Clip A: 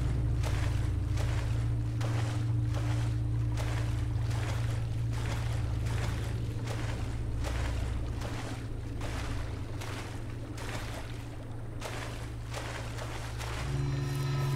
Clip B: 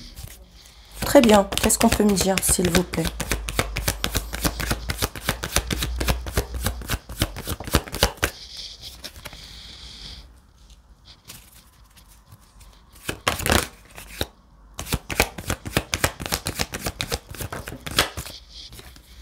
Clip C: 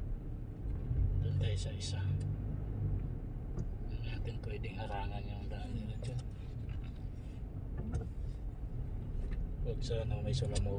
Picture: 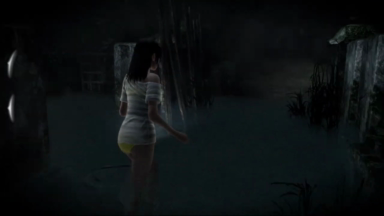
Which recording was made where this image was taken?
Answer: A